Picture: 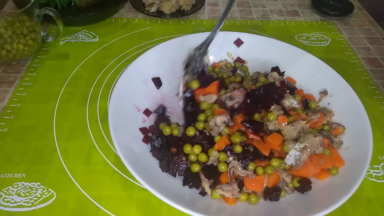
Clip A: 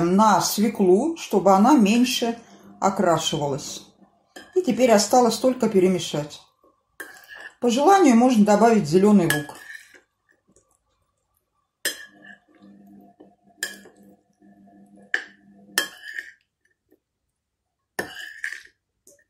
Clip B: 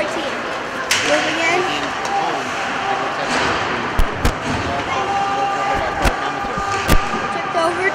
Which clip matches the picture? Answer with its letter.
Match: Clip A